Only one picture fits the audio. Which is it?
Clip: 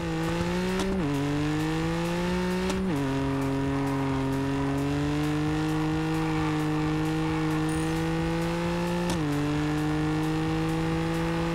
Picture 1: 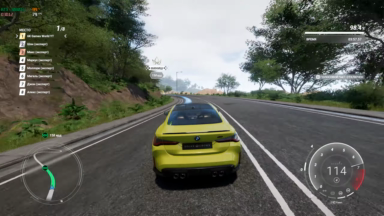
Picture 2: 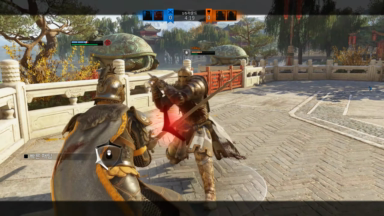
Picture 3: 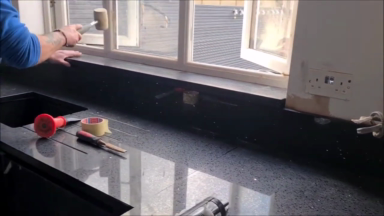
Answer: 1